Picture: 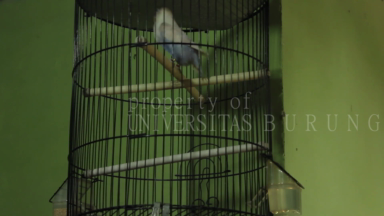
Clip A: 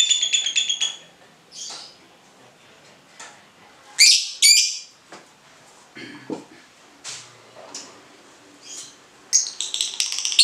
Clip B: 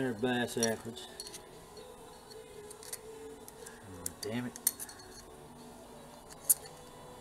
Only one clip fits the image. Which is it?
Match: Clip A